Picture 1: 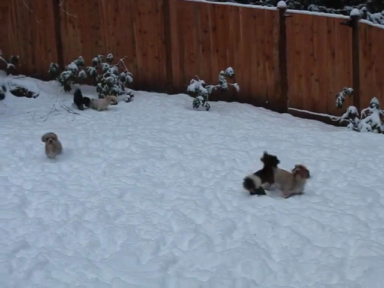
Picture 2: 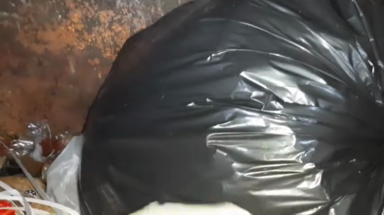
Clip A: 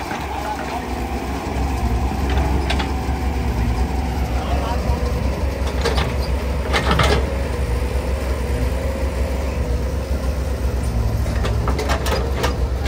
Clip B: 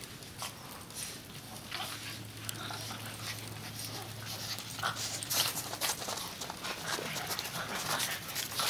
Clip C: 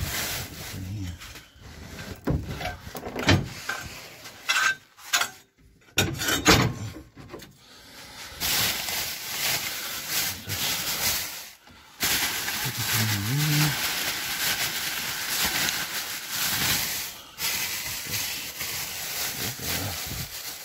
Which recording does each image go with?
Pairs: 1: B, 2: C